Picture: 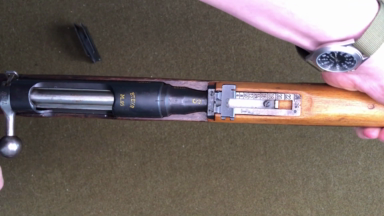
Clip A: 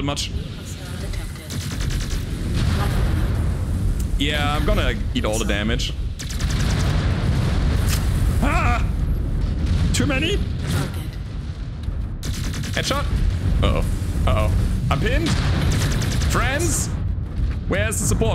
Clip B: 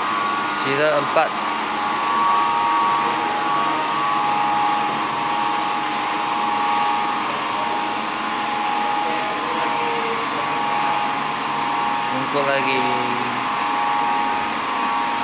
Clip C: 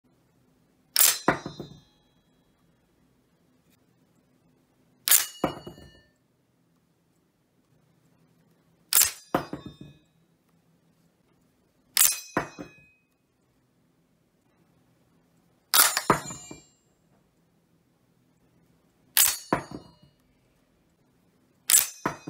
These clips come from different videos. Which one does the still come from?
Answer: C